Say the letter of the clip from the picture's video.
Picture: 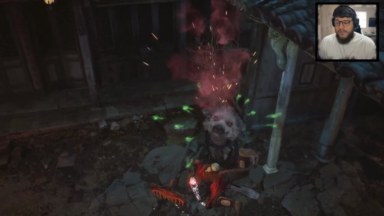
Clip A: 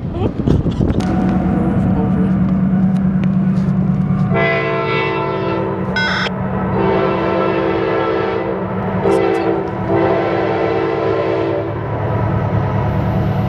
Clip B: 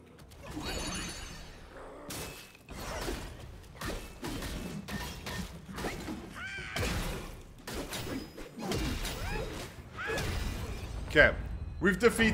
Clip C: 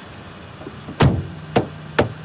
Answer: B